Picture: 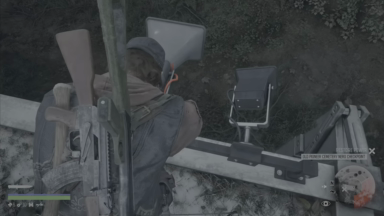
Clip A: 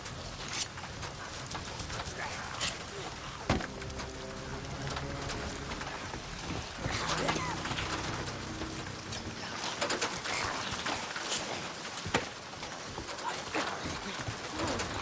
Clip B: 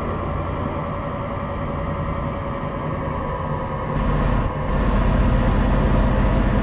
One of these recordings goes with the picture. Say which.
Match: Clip A